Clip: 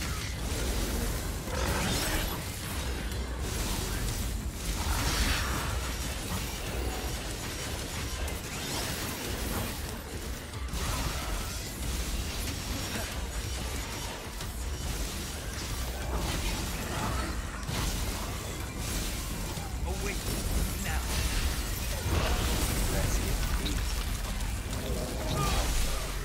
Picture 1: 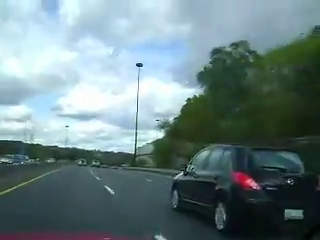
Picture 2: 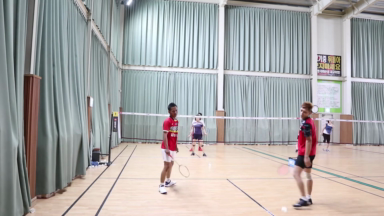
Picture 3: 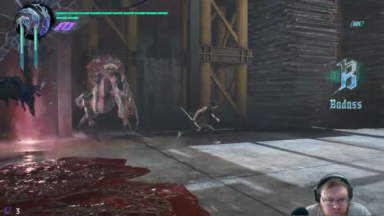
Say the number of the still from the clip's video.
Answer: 3